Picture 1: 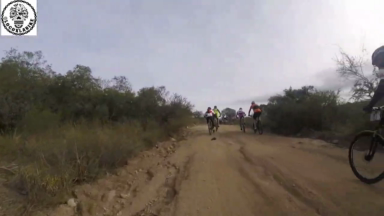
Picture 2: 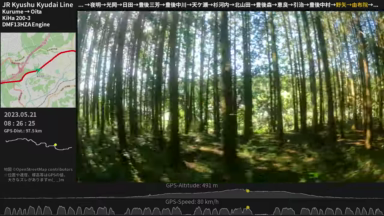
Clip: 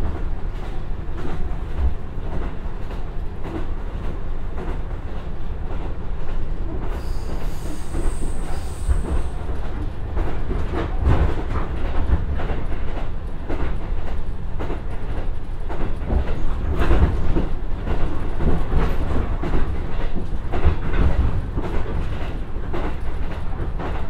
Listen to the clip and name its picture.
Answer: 2